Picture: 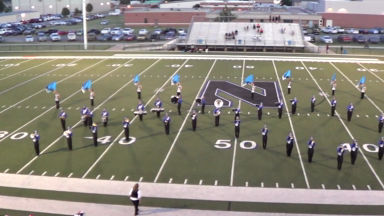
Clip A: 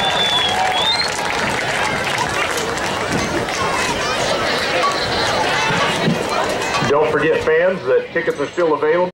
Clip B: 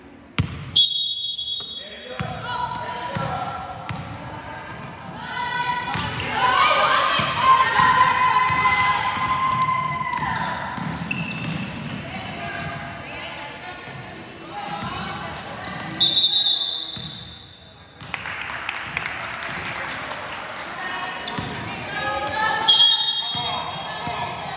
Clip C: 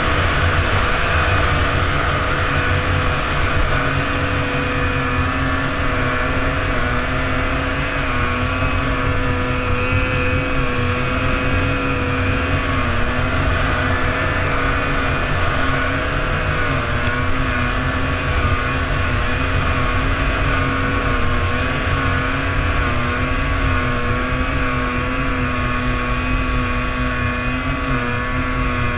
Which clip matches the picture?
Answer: A